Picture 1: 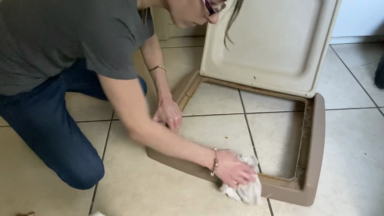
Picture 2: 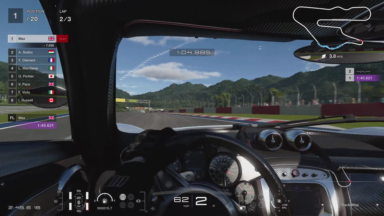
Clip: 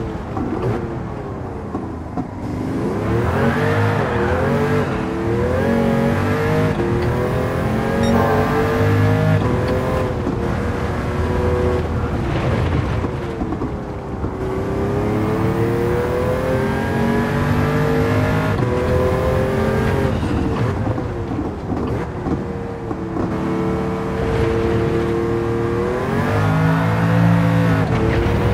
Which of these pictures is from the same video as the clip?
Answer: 2